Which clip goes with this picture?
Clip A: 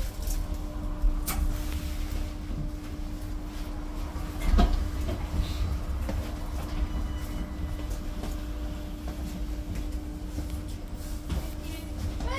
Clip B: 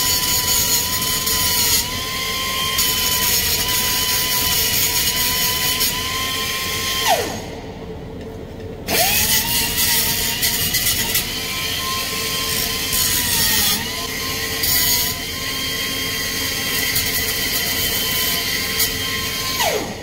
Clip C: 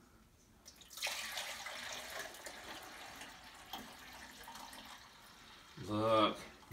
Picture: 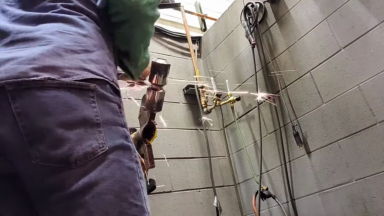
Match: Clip B